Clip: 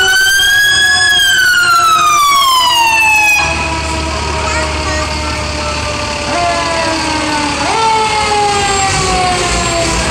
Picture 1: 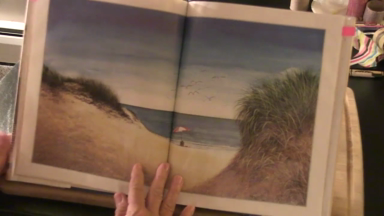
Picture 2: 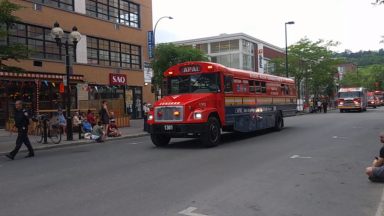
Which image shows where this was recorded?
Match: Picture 2